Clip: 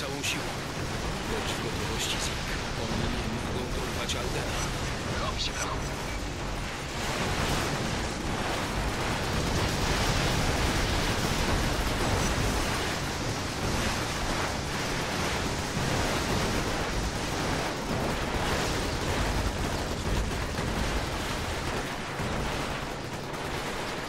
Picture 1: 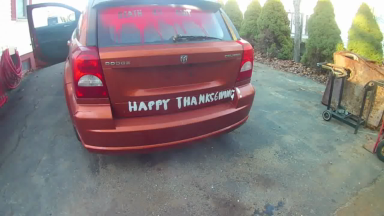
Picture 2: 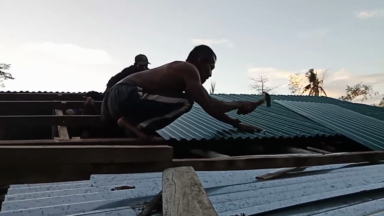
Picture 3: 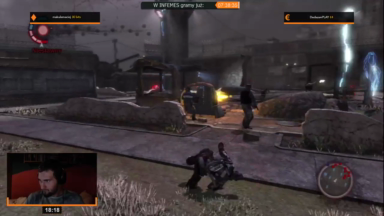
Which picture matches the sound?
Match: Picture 3